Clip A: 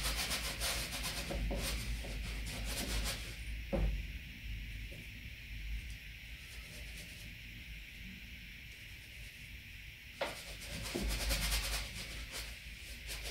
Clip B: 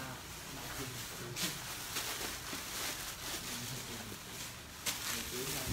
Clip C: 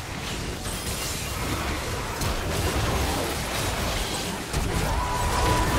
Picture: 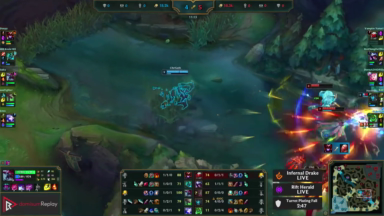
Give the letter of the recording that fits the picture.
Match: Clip C